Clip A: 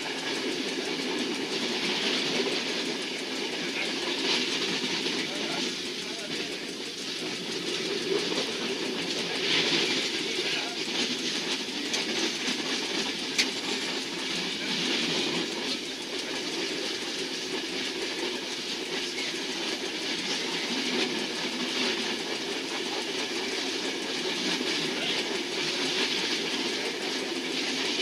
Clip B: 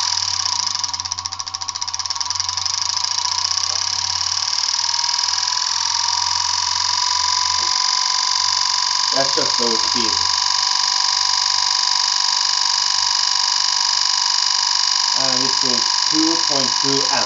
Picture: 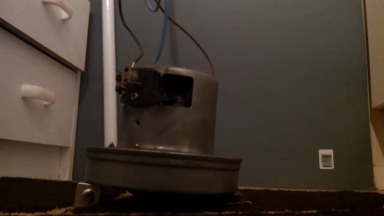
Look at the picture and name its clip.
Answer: B